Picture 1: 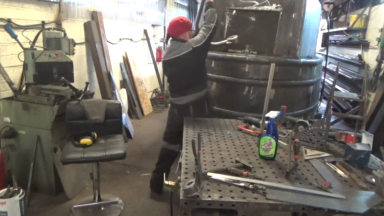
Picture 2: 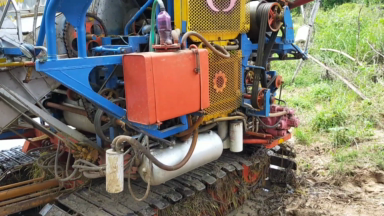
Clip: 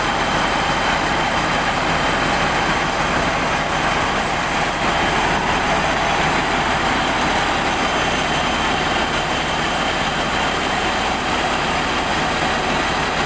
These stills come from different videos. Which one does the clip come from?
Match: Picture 2